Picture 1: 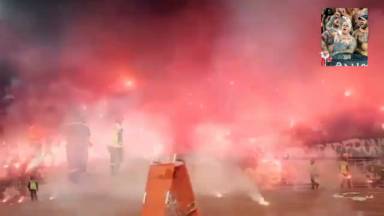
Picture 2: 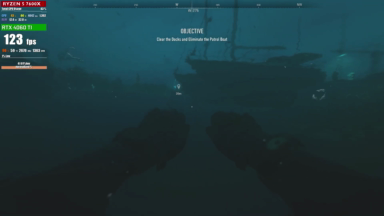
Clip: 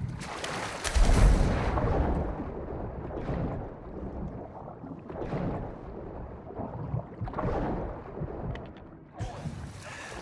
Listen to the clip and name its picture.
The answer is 2